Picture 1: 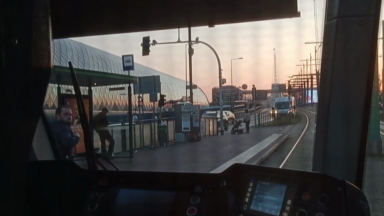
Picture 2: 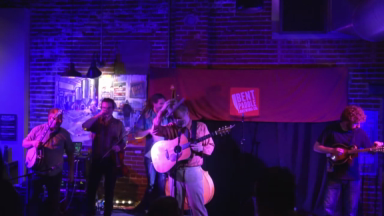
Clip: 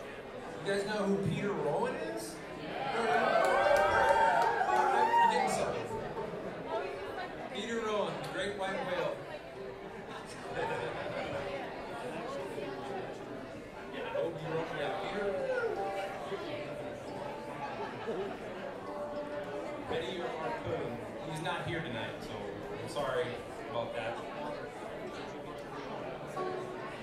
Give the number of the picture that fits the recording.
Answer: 2